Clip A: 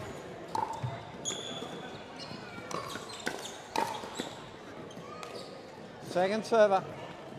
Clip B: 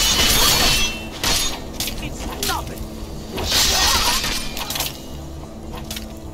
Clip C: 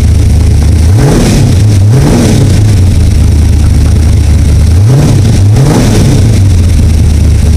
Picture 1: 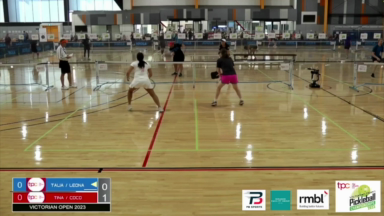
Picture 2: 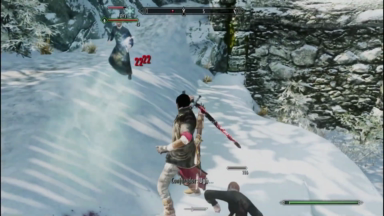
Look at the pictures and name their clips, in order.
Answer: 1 A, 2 B